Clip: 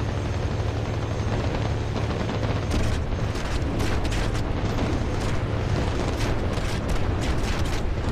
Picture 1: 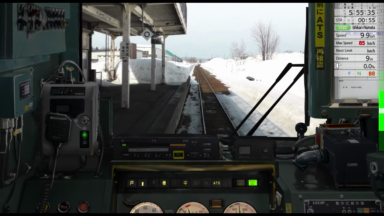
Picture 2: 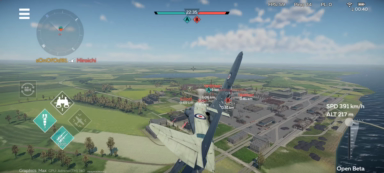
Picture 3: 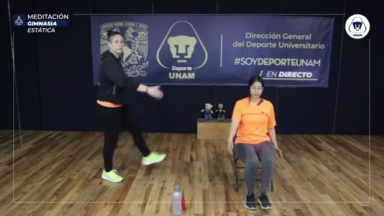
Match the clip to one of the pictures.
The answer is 2